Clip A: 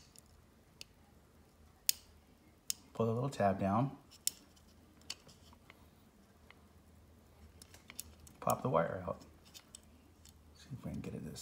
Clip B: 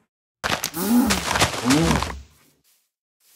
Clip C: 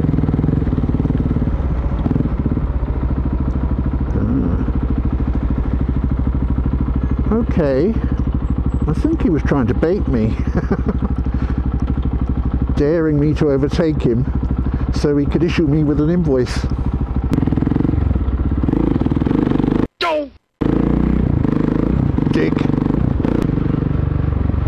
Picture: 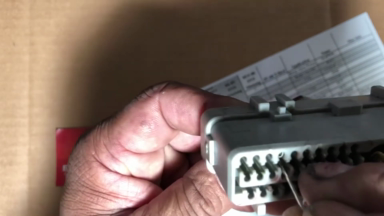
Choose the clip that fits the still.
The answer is A